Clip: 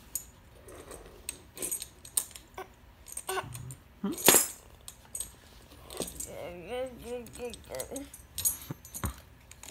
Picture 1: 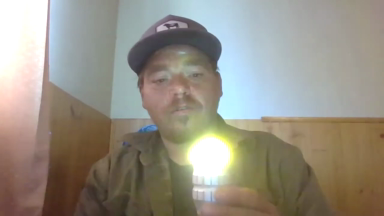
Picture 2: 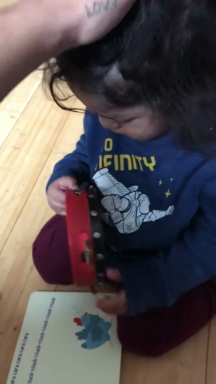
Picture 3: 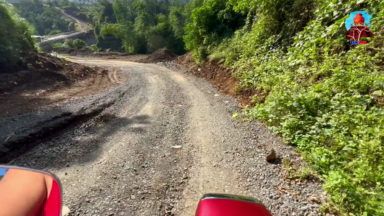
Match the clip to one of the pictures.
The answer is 2